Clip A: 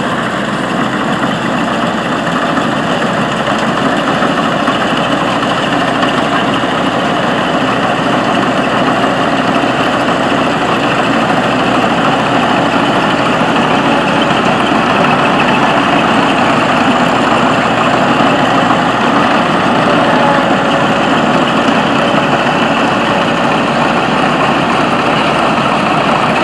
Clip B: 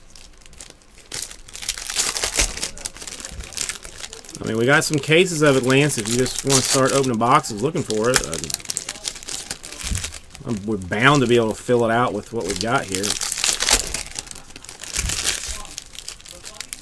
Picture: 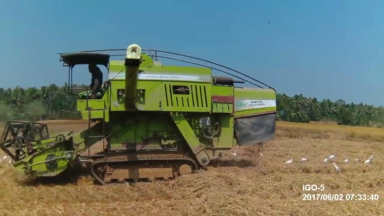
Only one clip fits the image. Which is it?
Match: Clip A